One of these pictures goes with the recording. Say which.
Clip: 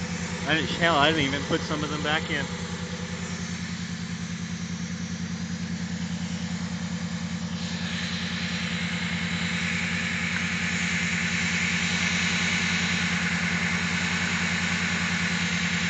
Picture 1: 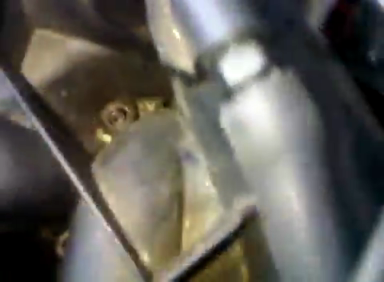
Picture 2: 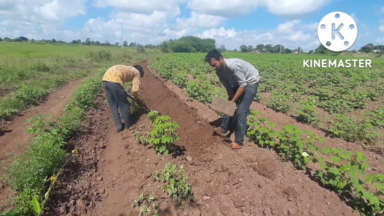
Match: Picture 1